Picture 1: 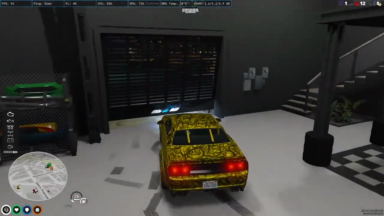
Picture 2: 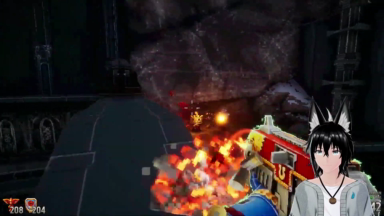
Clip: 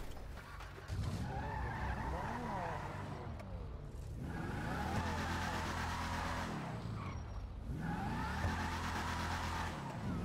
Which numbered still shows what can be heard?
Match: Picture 1